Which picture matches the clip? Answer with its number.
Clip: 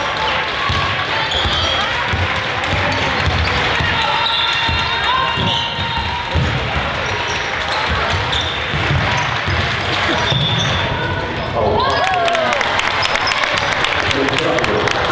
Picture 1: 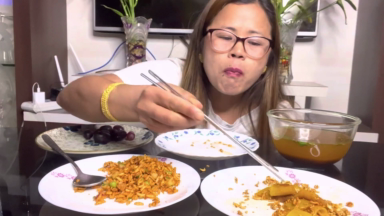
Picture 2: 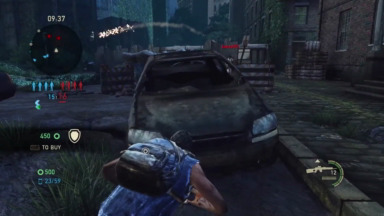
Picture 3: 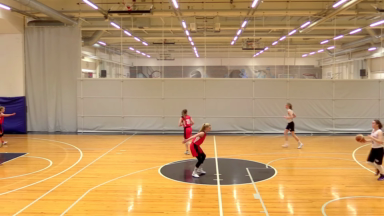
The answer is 3